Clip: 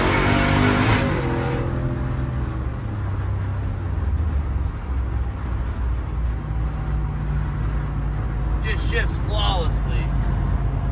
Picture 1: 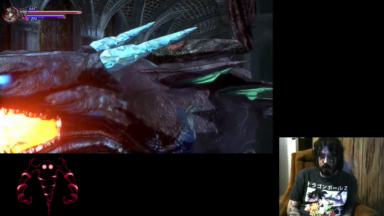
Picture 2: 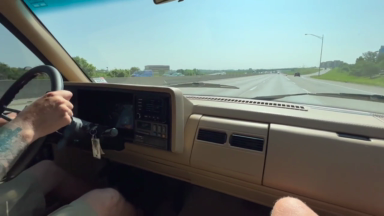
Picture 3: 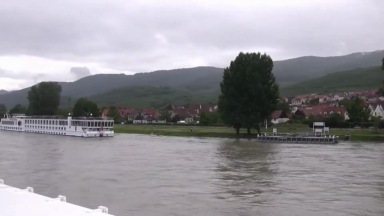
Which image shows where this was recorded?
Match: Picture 2